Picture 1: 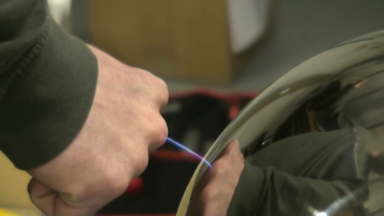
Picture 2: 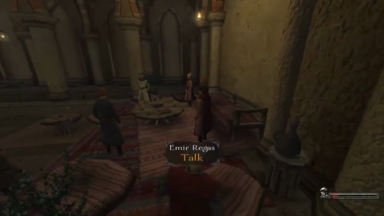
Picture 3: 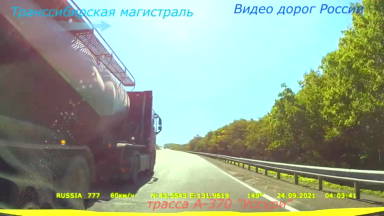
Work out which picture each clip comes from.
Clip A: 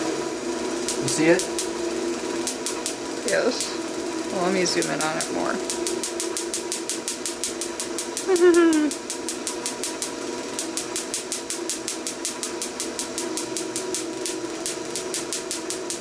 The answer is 1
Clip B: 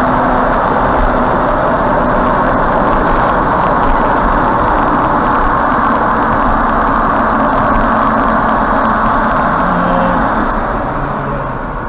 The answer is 3